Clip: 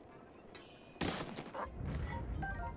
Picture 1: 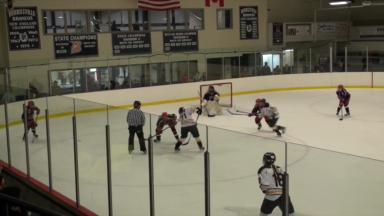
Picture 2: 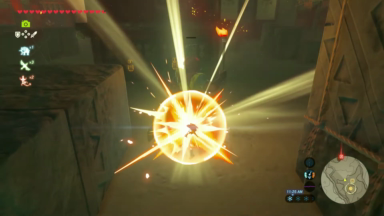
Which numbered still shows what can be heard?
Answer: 2